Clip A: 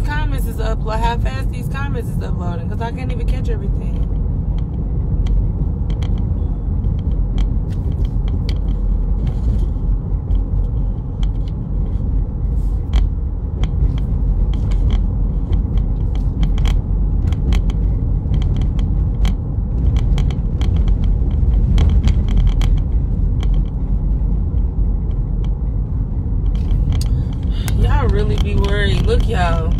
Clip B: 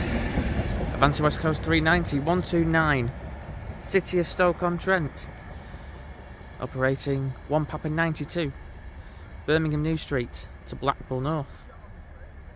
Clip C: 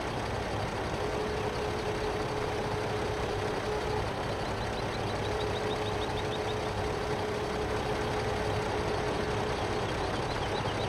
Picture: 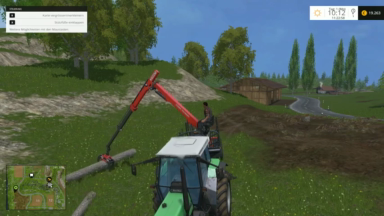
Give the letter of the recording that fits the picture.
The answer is C